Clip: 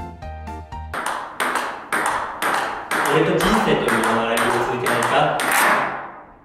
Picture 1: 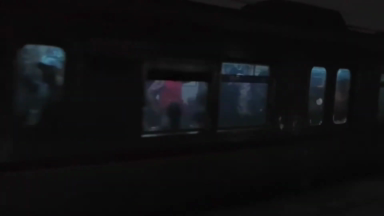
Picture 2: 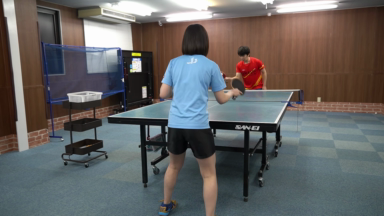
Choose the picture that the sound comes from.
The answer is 2